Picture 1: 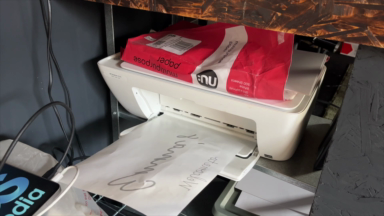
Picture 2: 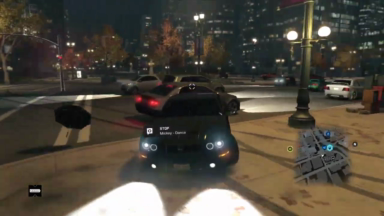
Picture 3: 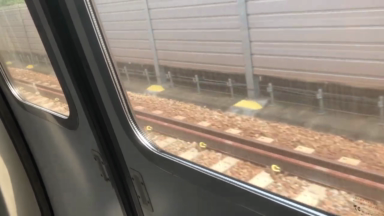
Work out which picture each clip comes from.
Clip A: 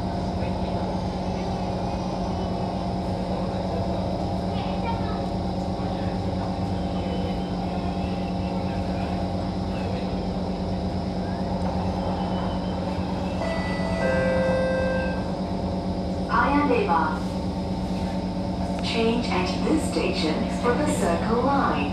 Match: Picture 3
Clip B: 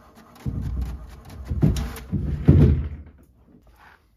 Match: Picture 1